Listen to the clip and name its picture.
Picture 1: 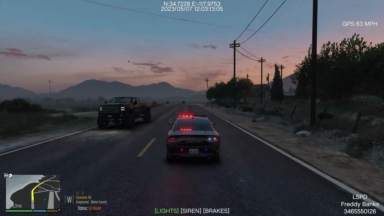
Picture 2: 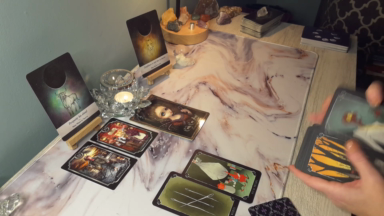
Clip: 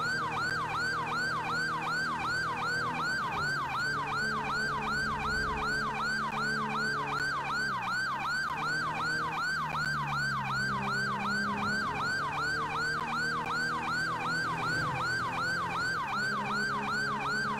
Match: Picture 1